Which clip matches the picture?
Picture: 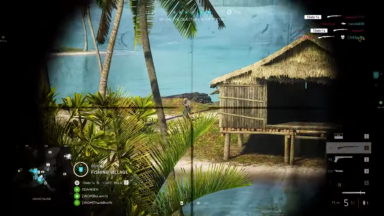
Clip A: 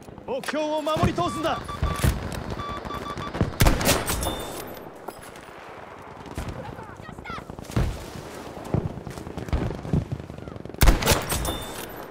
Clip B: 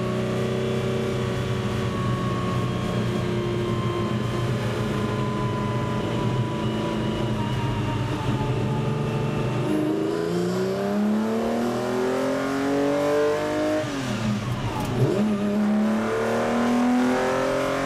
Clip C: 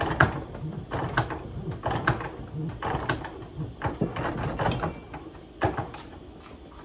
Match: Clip A